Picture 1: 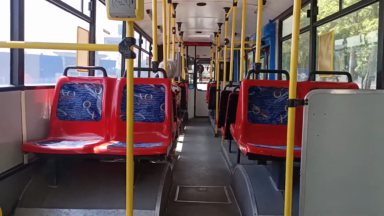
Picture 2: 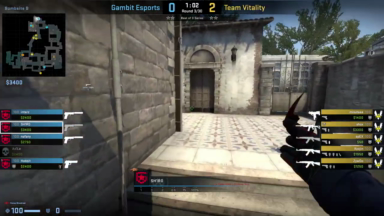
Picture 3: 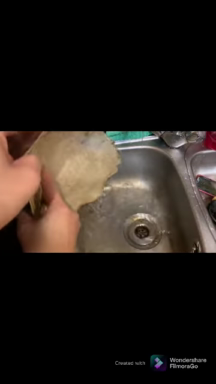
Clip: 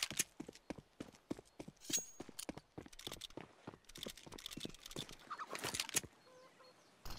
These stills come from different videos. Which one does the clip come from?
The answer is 2